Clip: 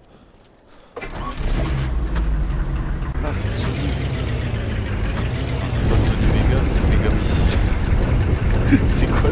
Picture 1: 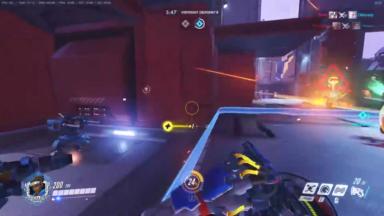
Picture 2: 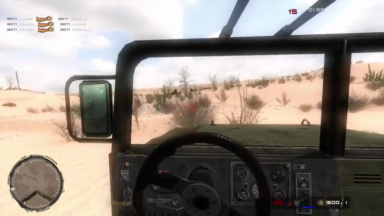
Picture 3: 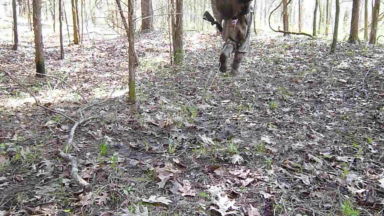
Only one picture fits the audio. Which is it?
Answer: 2